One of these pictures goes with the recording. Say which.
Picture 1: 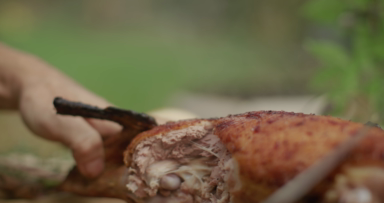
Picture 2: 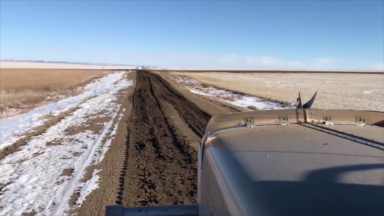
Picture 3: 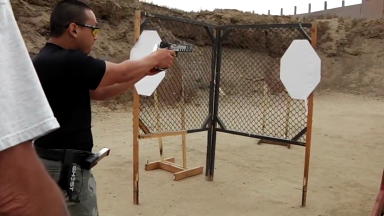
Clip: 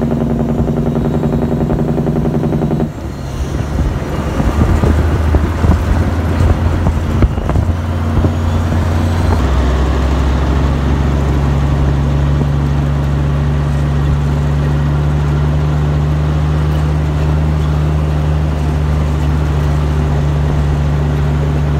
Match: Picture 2